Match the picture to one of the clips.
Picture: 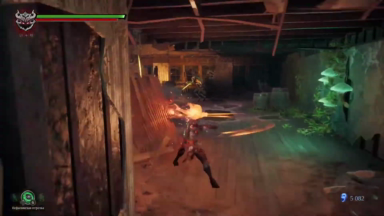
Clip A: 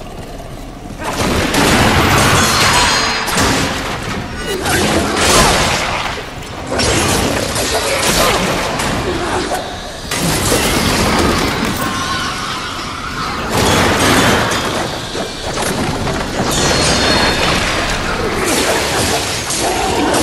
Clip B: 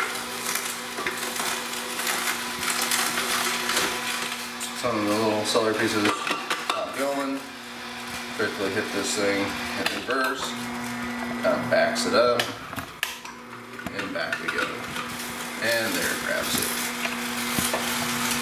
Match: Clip A